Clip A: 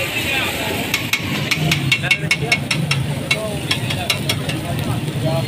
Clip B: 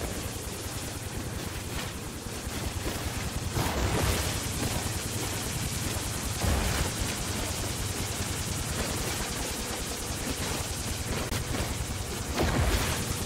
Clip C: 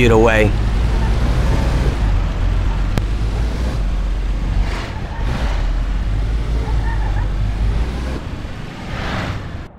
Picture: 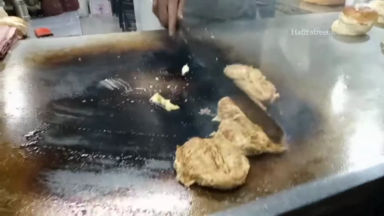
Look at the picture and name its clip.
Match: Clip A